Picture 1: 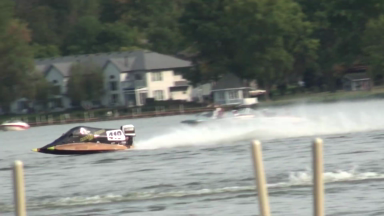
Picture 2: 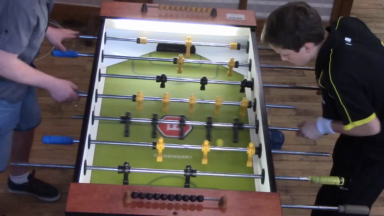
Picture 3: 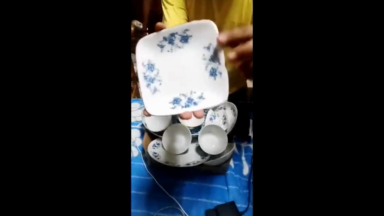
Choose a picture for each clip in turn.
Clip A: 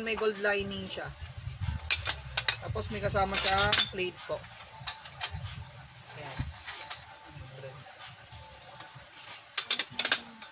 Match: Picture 3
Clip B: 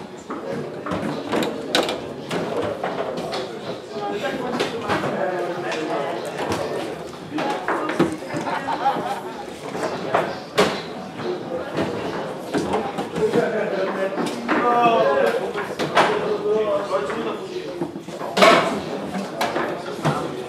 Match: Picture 2